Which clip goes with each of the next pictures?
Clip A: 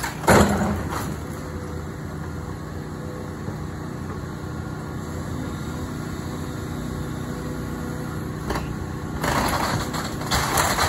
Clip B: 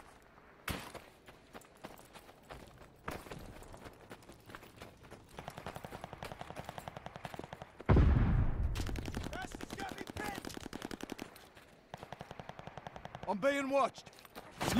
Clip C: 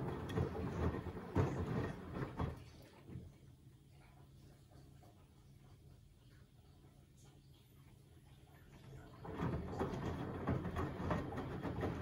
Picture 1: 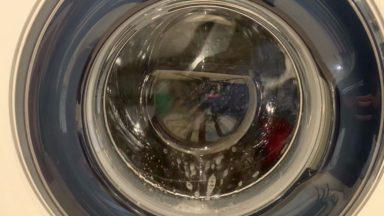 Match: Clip C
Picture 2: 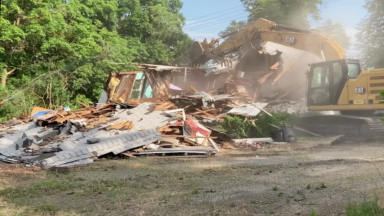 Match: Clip A